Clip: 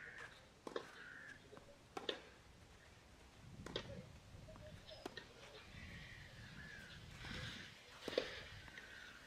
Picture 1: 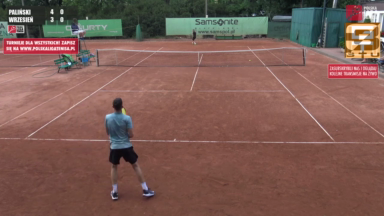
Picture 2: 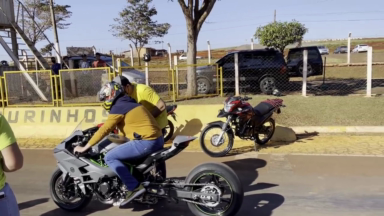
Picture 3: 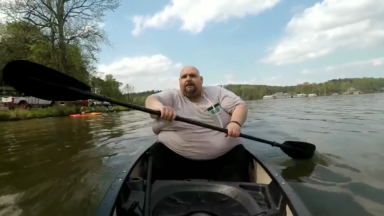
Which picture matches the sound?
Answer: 1